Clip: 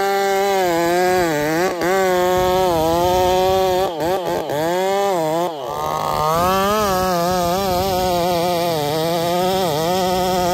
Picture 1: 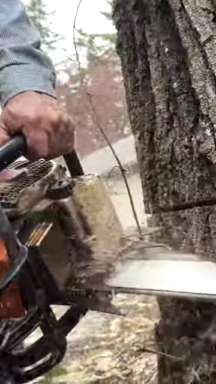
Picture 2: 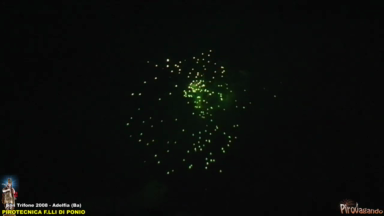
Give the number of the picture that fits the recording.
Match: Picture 1